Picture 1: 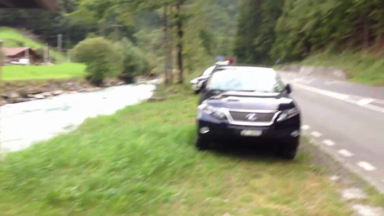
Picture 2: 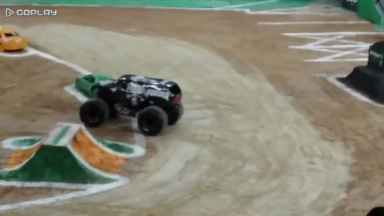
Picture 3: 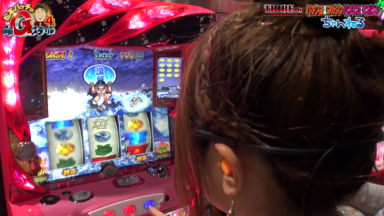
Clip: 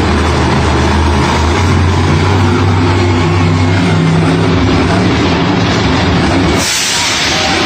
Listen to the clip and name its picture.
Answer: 2